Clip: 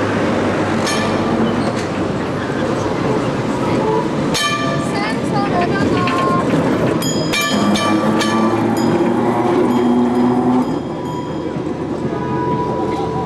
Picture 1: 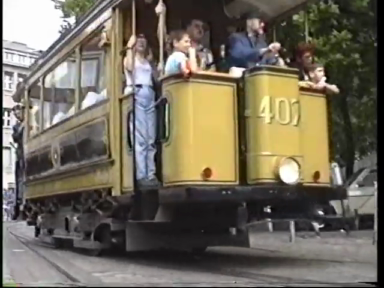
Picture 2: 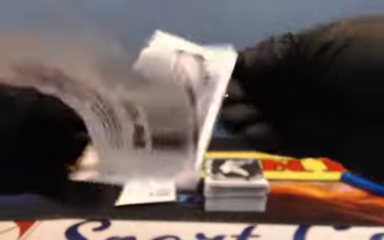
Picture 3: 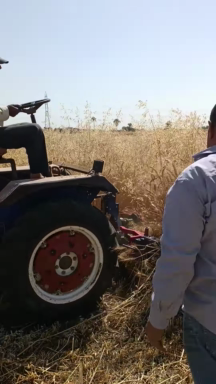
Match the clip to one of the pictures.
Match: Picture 1